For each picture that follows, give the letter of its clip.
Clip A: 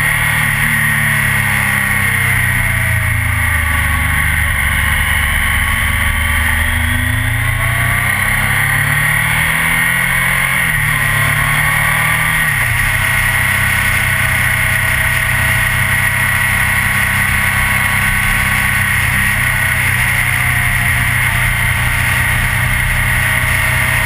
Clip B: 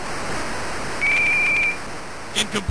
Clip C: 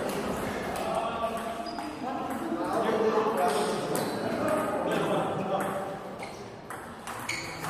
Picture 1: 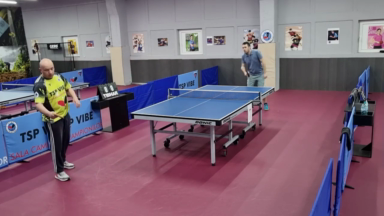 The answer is C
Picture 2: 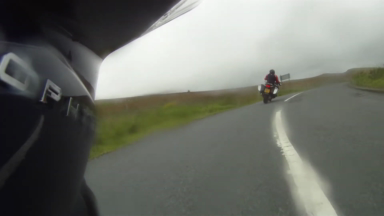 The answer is A